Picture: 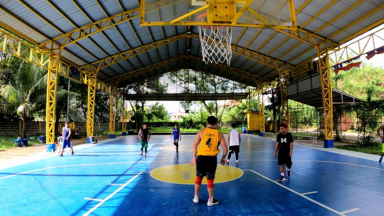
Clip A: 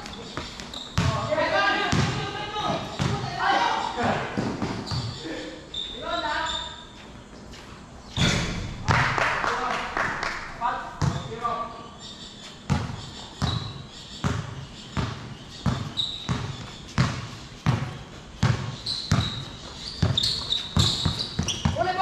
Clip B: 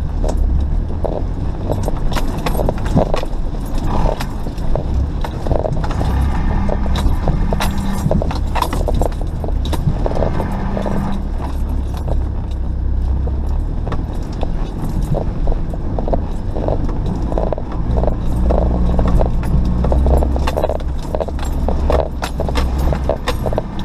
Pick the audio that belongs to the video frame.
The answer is A